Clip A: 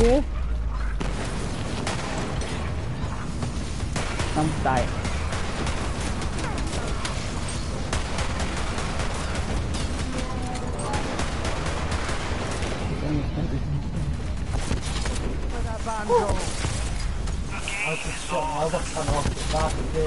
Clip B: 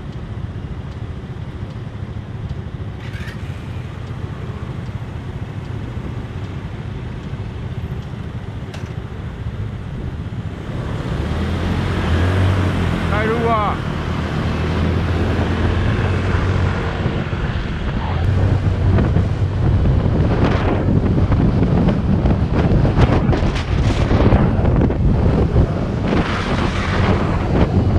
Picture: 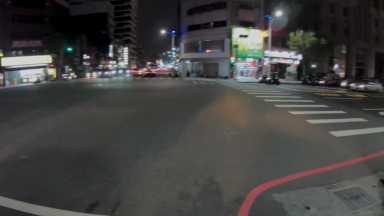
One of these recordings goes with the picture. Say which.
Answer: B